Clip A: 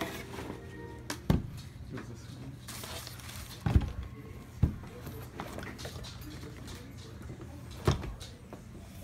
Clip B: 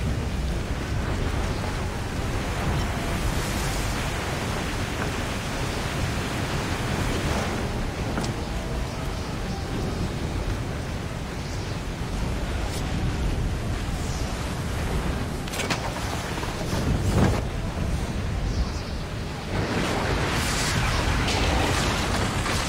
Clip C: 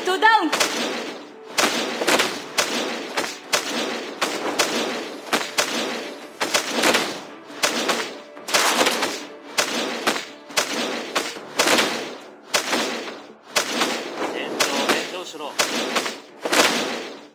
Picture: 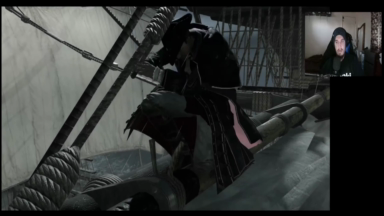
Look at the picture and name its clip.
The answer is B